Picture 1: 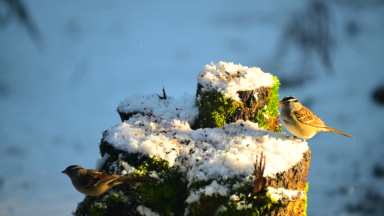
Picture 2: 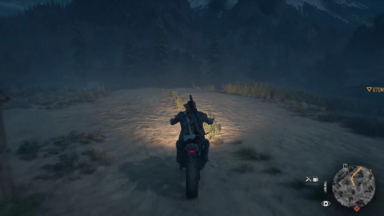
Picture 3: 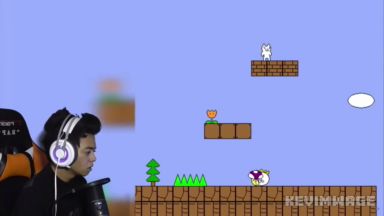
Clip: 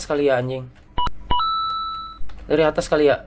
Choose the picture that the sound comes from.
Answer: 3